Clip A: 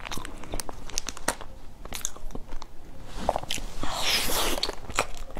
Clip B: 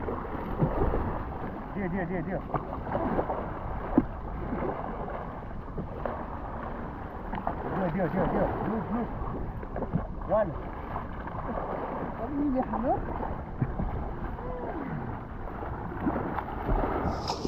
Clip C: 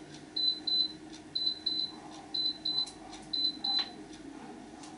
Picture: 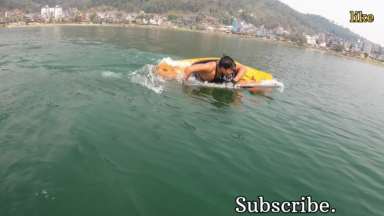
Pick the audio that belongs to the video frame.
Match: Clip B